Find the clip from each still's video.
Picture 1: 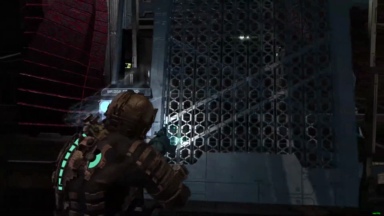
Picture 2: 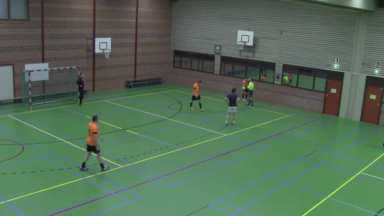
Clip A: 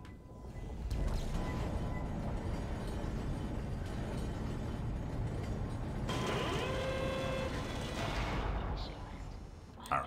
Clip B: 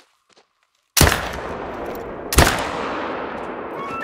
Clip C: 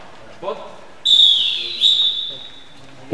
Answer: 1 A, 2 C